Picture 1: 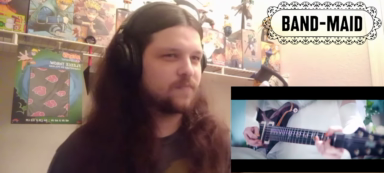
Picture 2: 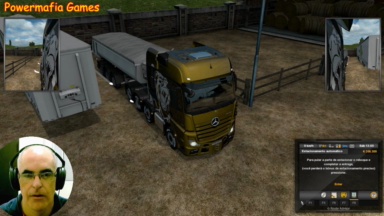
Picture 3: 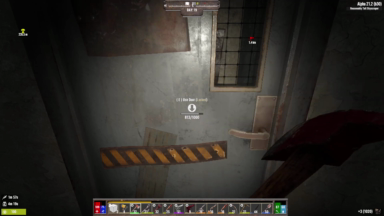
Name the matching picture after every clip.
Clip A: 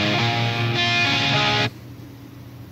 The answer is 1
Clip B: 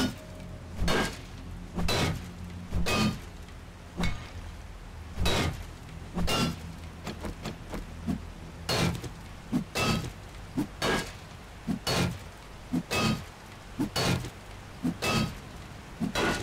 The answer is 3